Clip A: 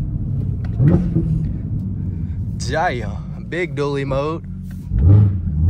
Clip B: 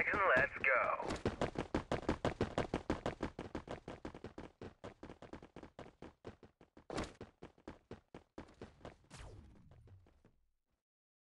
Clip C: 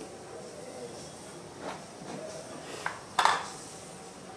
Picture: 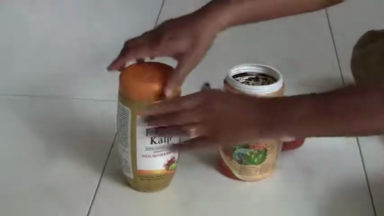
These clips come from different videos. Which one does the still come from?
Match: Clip C